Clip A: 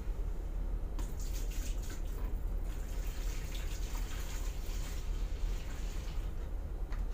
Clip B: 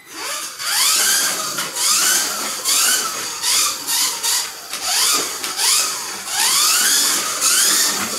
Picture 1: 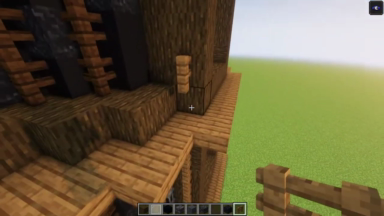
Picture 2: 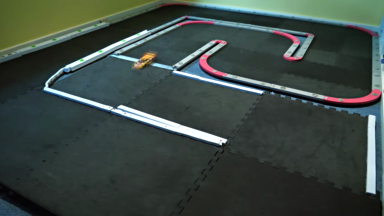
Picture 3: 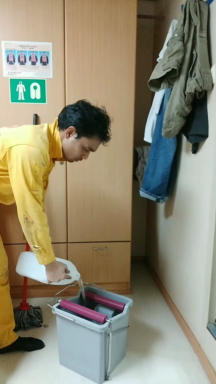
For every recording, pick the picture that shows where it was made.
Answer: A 3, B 2